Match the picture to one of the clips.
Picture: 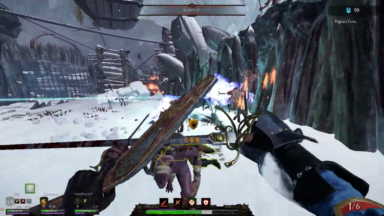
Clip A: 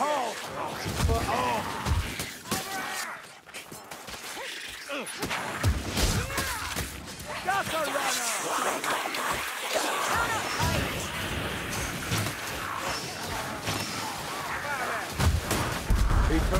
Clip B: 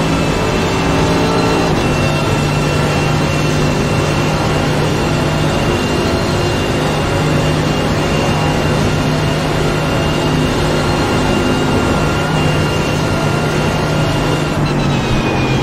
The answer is A